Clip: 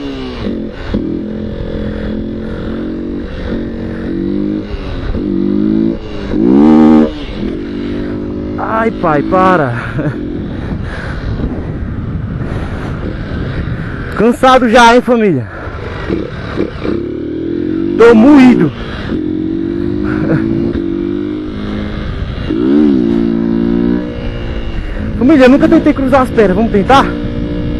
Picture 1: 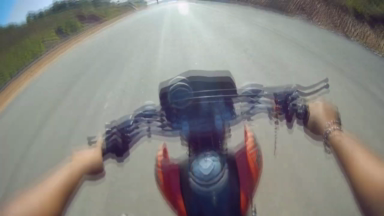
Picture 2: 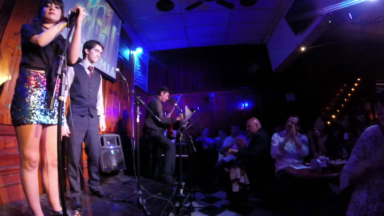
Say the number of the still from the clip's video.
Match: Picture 1